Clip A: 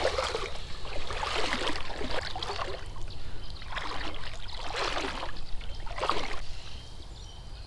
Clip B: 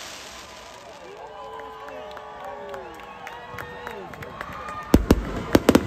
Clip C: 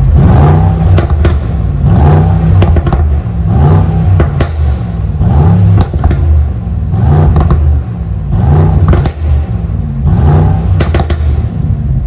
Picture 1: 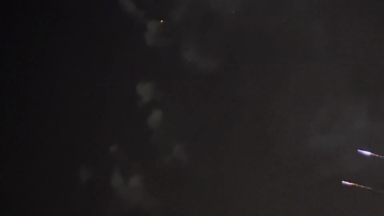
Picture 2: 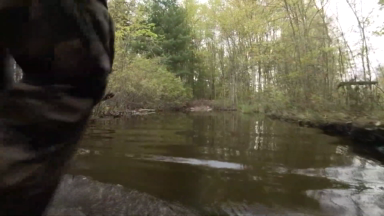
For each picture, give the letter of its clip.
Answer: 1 B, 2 A